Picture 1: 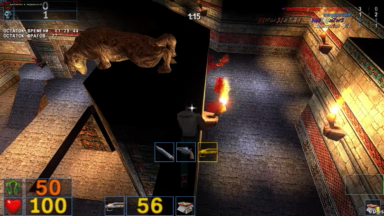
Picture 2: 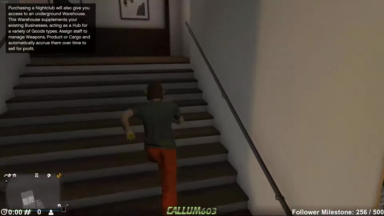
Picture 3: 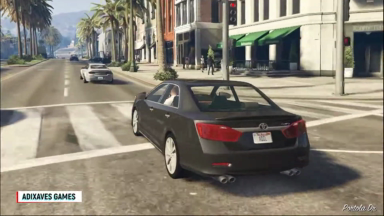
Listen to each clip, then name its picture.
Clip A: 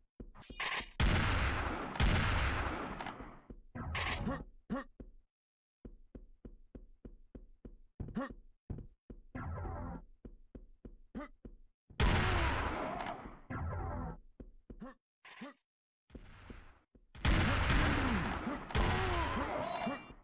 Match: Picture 1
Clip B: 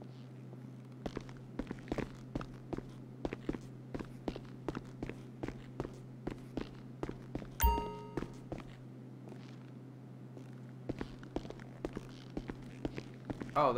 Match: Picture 2